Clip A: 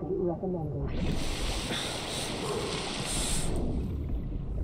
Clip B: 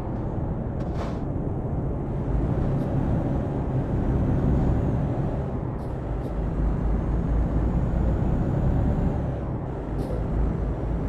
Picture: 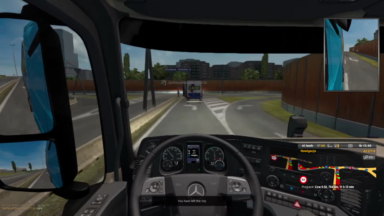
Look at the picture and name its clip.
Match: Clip B